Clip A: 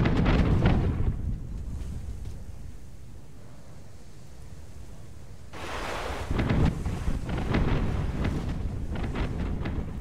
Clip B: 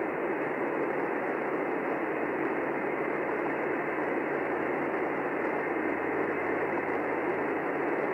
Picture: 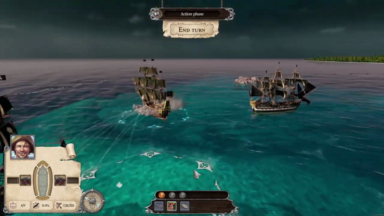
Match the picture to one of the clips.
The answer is A